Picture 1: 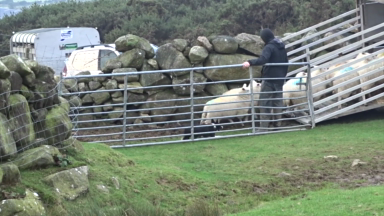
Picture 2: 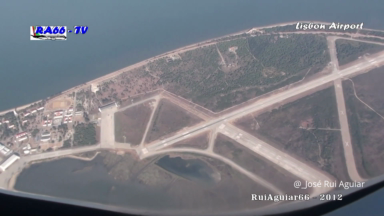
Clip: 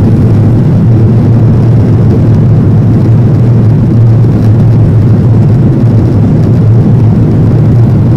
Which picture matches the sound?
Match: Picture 2